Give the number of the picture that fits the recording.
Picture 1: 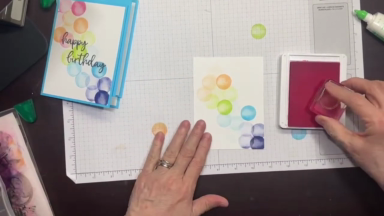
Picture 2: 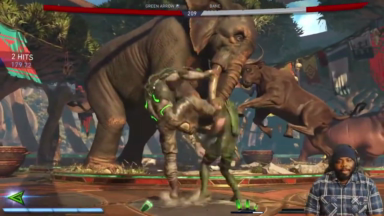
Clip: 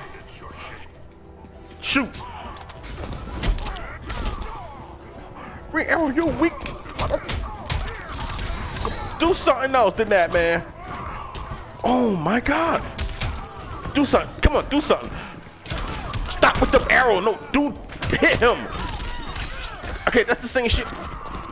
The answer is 2